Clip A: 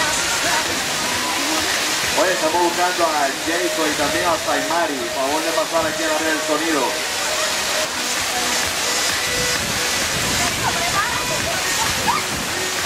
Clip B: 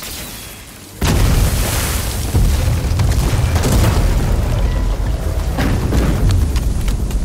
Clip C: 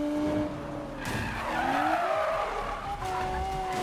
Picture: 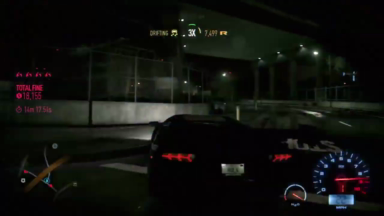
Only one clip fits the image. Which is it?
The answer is C